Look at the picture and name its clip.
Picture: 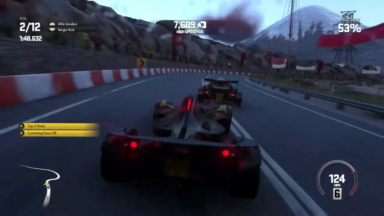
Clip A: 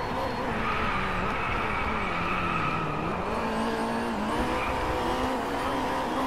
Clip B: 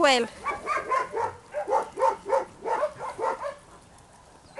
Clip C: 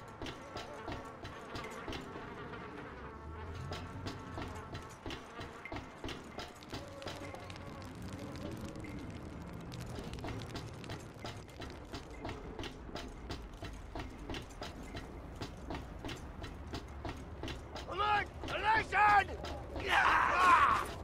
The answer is A